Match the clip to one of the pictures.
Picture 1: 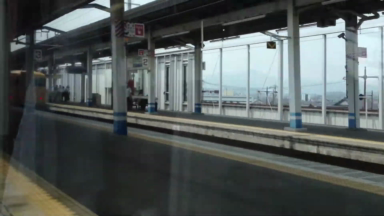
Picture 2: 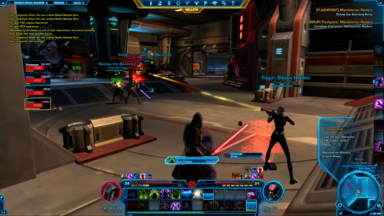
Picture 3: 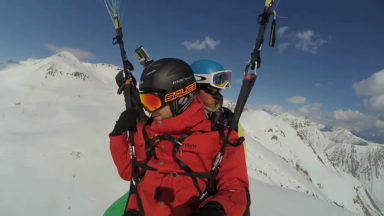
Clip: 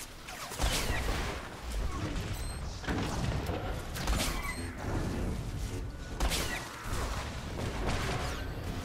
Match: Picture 2